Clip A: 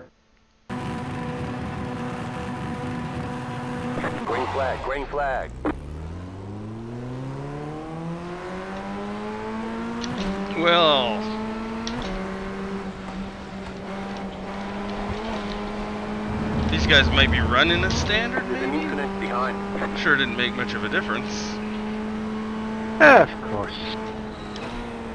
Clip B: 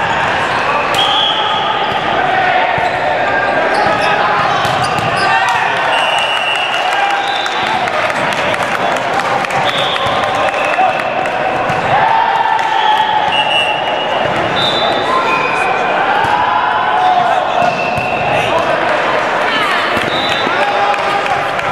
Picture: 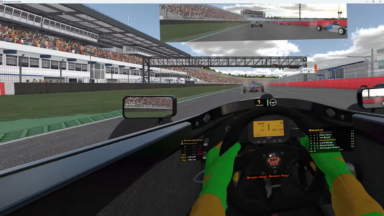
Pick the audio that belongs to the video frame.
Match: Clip A